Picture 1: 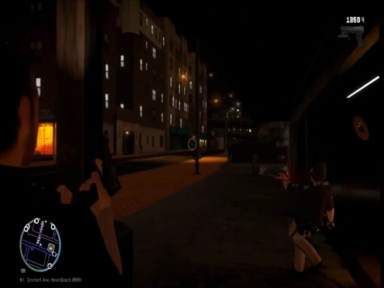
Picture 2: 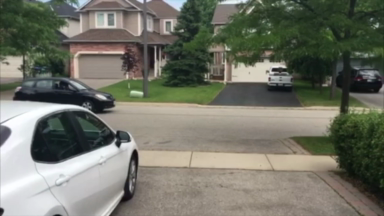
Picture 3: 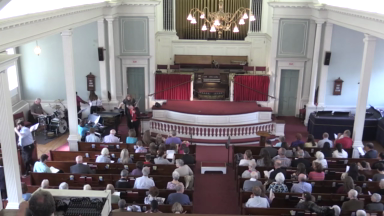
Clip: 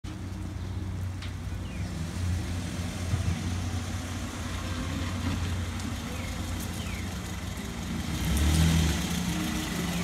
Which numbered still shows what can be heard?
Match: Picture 2